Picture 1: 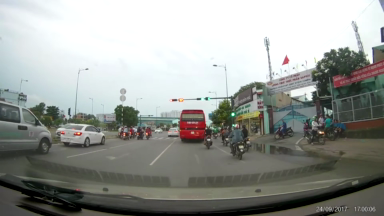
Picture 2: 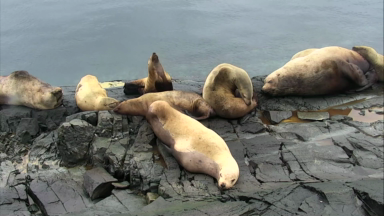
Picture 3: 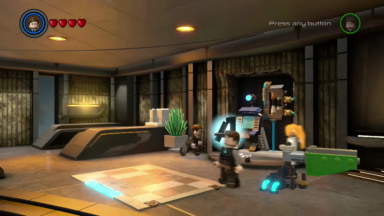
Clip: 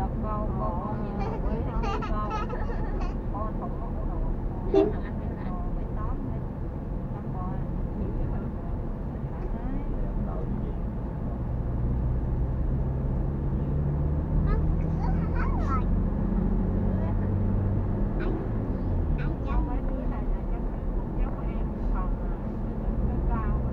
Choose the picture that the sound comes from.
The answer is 1